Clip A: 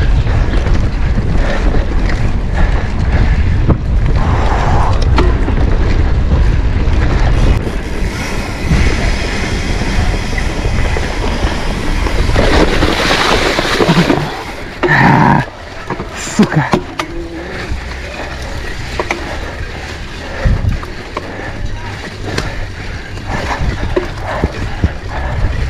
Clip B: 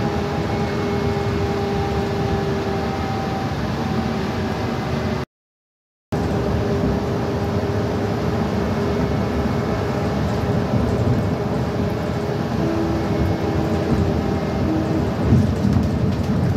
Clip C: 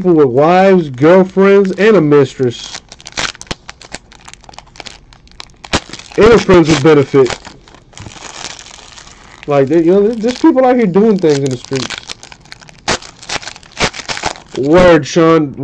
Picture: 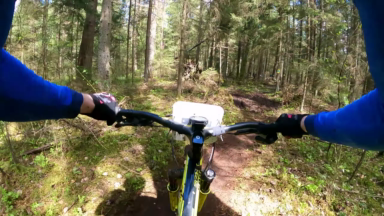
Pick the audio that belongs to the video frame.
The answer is A